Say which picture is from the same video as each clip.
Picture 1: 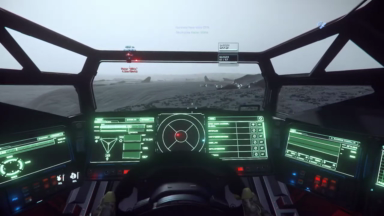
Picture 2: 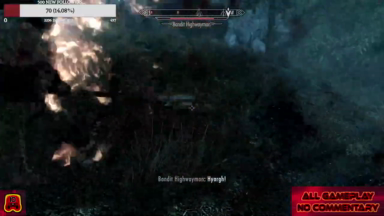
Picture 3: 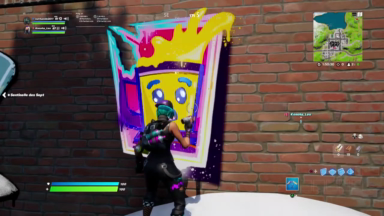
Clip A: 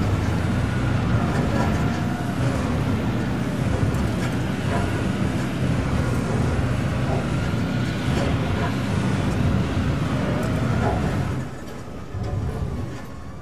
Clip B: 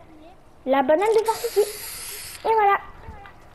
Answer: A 1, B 3